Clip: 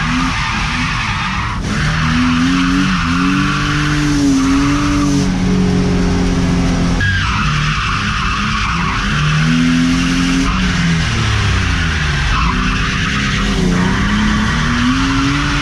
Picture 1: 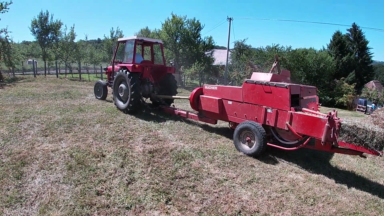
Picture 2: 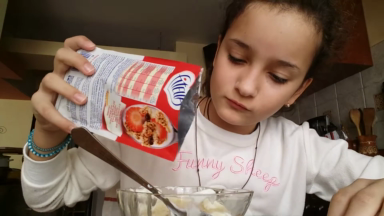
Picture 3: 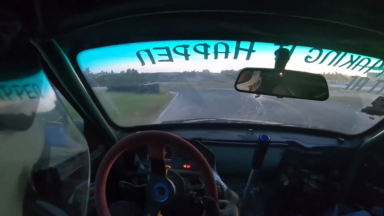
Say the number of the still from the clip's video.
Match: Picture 3